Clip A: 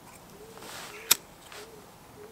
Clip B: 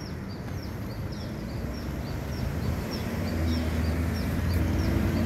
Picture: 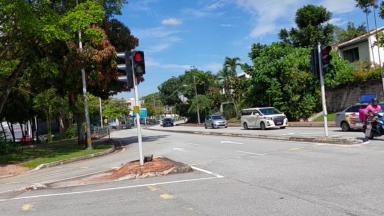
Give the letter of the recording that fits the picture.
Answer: B